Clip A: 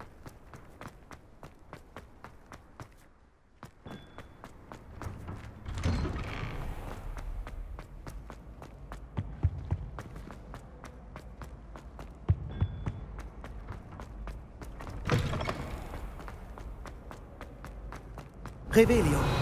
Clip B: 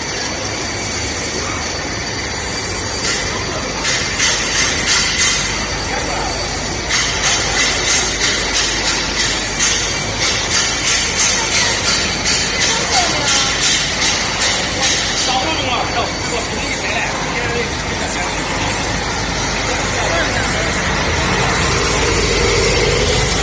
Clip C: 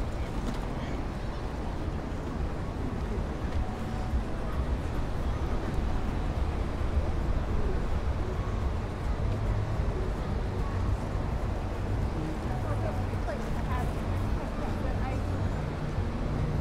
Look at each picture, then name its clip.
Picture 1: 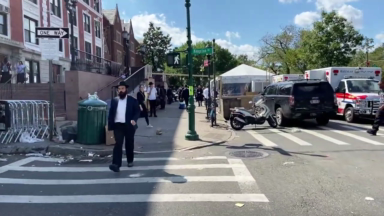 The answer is C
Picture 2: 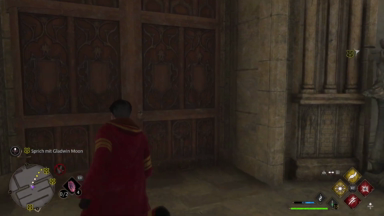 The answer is A